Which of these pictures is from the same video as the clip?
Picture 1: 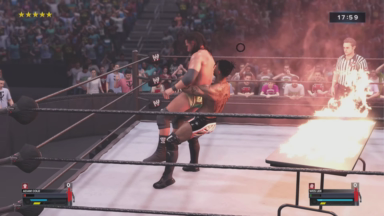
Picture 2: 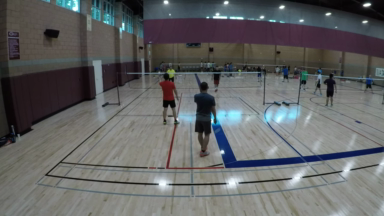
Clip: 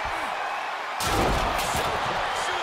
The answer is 1